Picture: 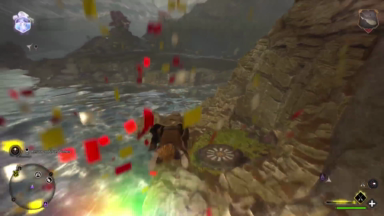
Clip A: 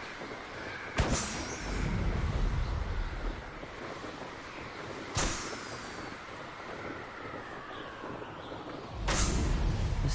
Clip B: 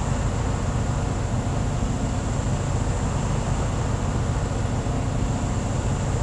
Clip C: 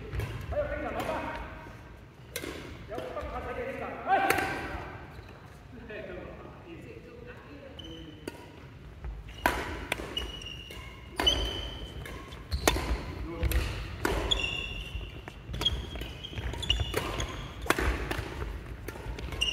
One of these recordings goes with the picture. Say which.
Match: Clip A